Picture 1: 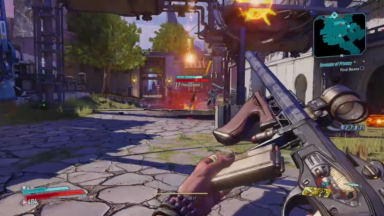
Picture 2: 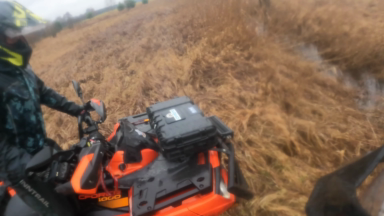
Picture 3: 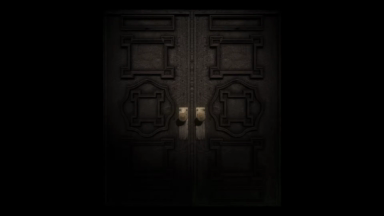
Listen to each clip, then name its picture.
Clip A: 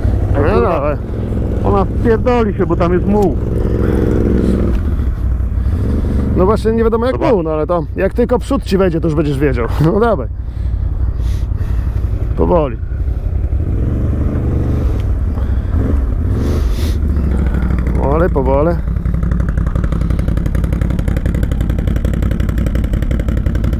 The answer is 2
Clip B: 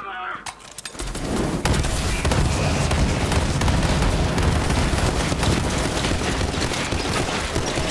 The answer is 1